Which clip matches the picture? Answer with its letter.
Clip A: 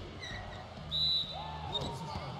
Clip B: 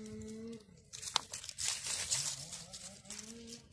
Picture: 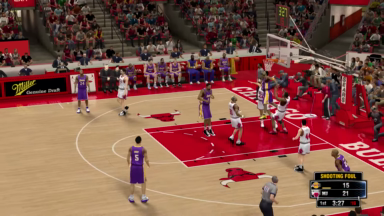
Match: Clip A